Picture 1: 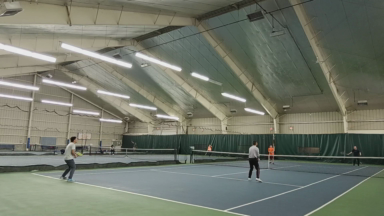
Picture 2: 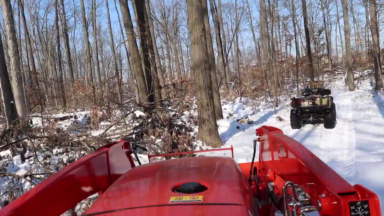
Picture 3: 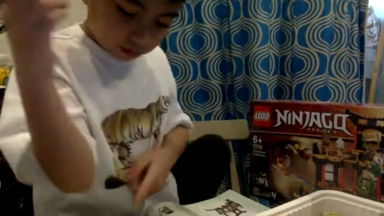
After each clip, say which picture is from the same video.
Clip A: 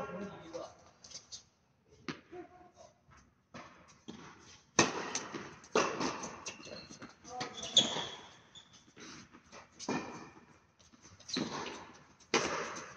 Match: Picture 1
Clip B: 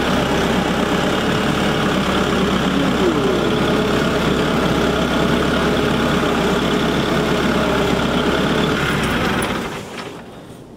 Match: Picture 2